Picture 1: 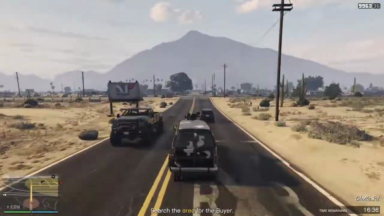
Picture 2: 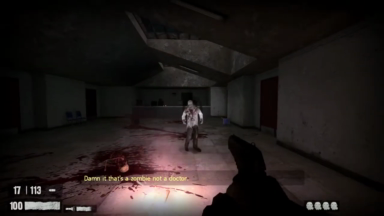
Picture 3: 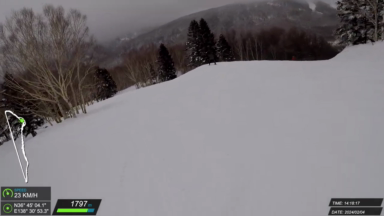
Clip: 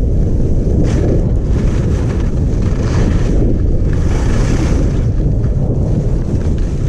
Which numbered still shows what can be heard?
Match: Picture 3